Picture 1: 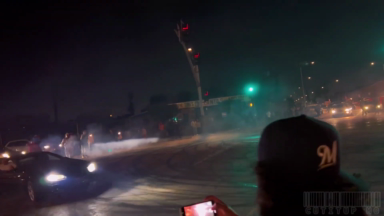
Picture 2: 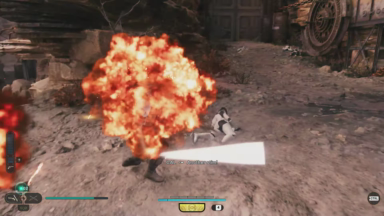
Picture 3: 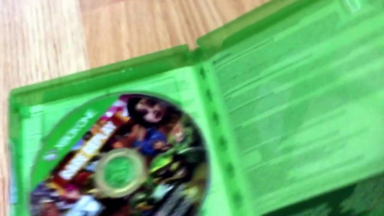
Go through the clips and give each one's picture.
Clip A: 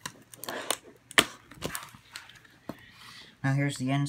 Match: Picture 3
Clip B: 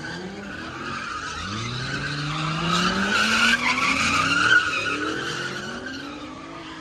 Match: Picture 1